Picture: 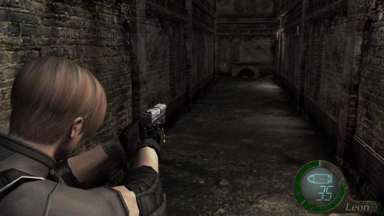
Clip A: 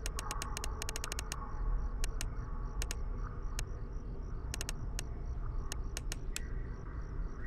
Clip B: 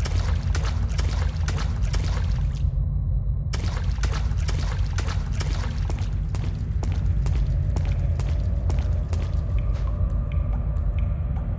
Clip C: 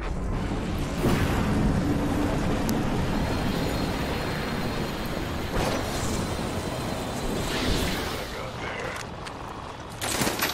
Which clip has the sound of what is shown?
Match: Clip B